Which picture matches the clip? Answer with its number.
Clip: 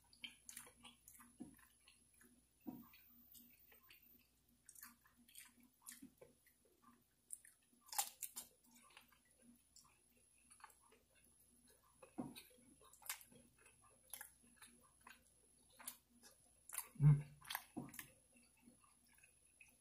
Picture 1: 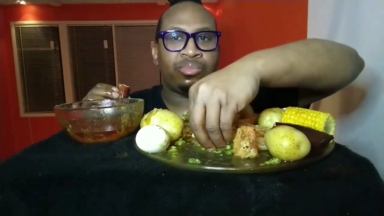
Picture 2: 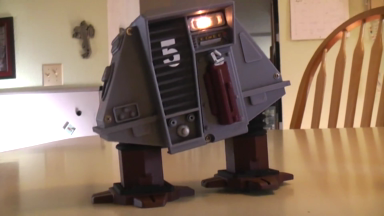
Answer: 1